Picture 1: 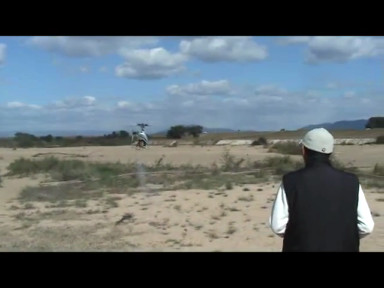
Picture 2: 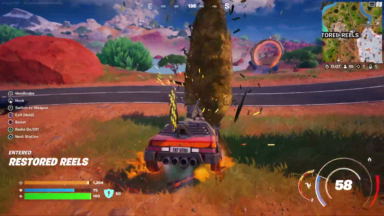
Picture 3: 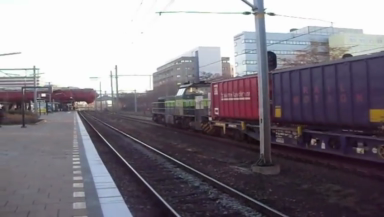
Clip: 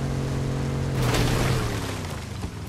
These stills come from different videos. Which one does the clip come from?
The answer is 2